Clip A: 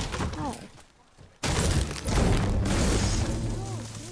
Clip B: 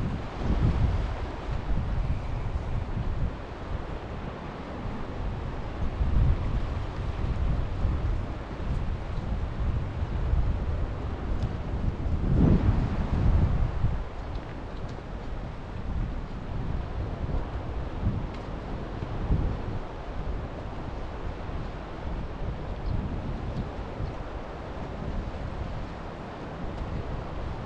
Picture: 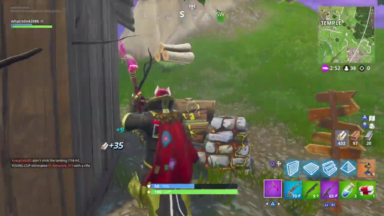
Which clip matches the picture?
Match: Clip A